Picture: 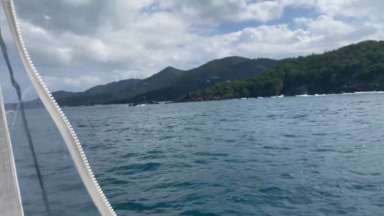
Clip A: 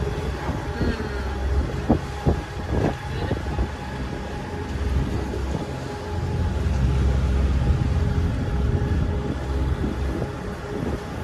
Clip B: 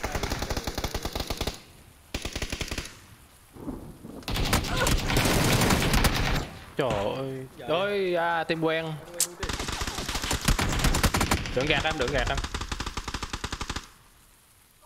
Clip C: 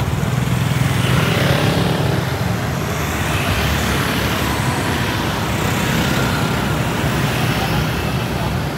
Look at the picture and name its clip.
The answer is A